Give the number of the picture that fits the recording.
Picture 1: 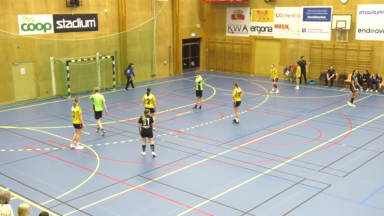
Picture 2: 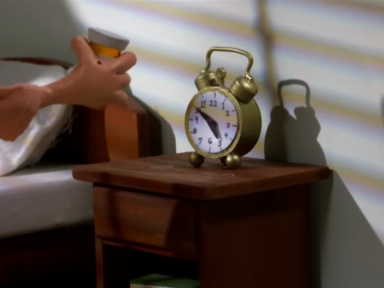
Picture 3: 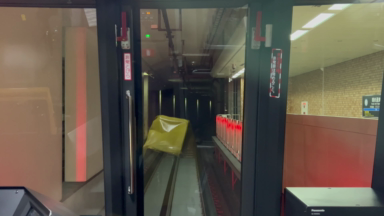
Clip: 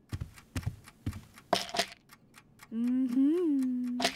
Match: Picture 2